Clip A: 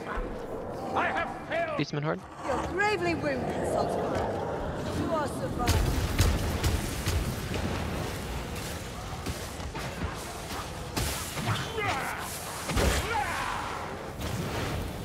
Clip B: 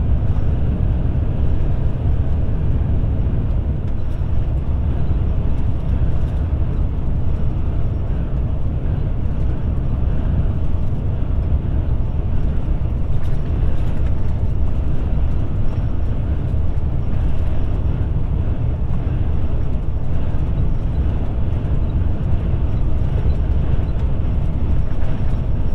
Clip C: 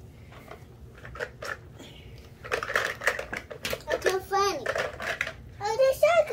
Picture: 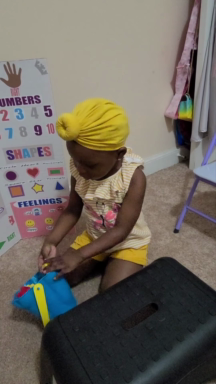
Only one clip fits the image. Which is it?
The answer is C